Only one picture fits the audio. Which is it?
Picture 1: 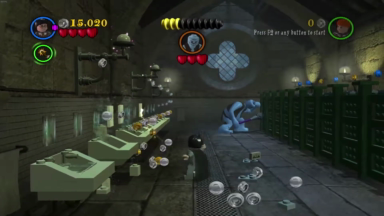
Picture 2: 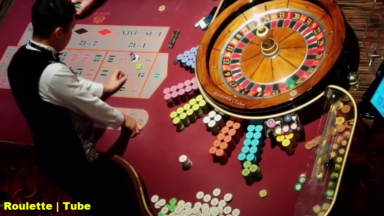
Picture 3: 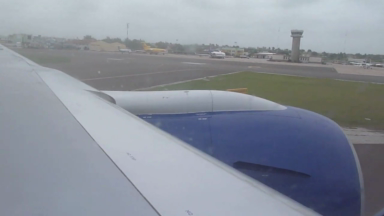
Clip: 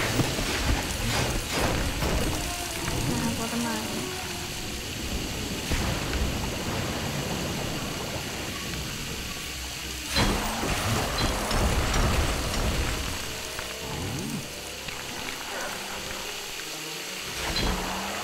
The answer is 1